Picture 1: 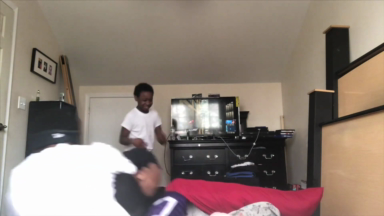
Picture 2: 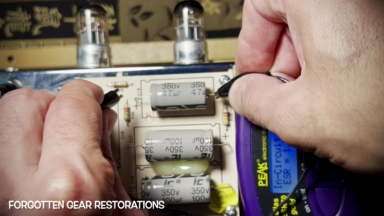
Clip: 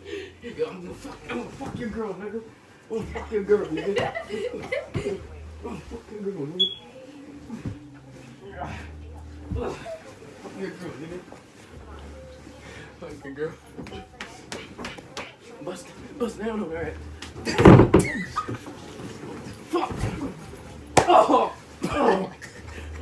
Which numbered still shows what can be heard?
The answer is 1